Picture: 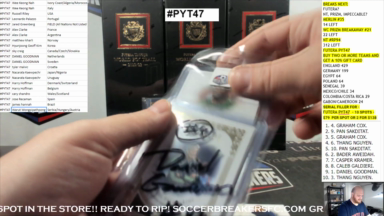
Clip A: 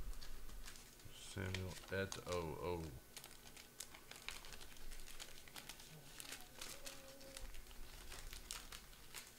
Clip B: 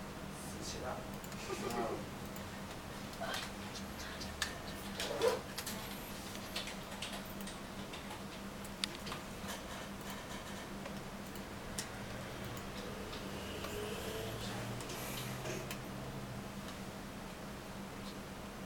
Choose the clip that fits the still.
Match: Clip A